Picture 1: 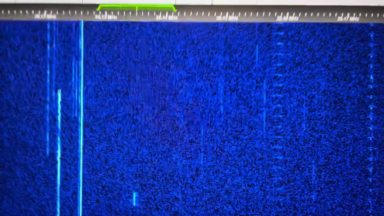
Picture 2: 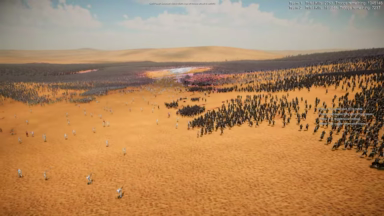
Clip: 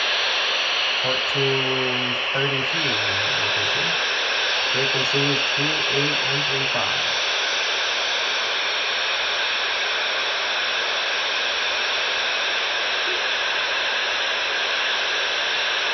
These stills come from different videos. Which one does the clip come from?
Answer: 1